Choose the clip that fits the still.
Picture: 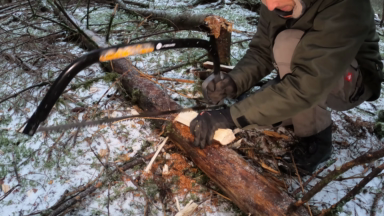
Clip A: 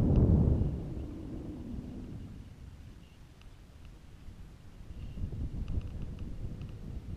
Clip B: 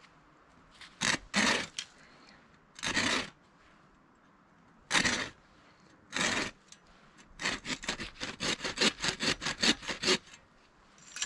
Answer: B